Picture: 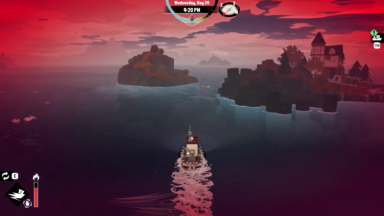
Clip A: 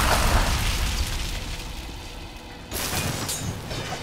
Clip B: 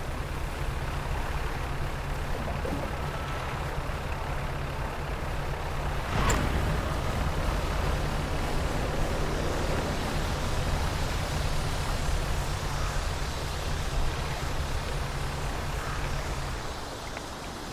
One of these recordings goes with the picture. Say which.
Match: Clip B